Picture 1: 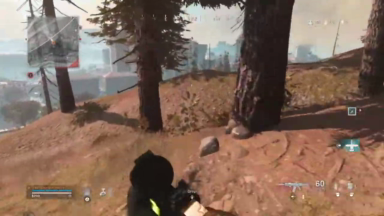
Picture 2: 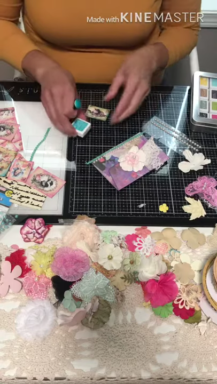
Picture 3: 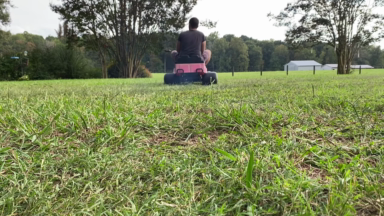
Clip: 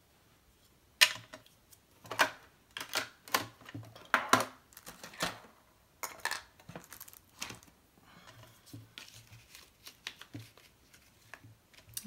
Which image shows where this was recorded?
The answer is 2